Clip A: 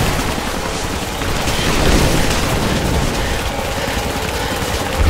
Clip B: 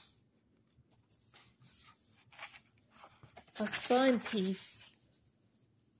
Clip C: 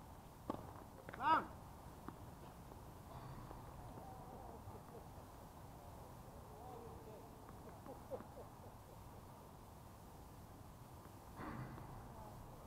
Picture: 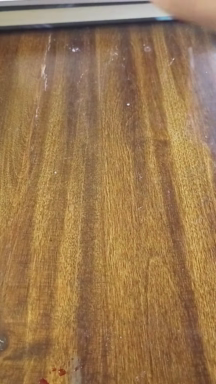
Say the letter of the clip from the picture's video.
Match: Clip B